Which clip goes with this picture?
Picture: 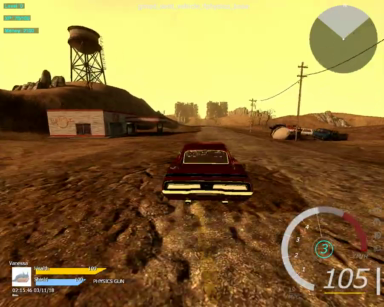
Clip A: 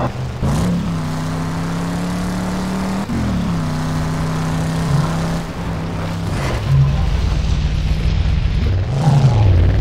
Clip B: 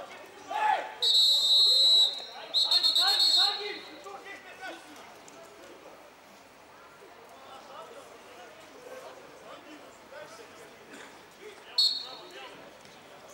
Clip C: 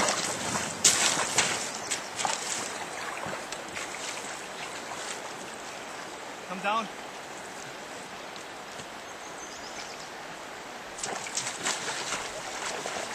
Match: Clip A